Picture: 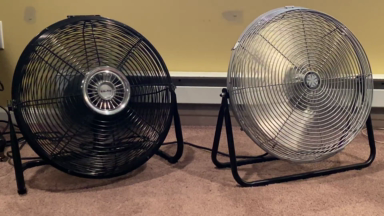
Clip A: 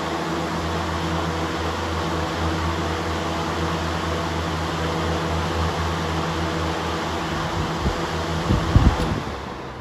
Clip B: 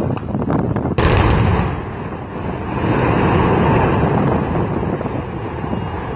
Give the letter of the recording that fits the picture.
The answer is A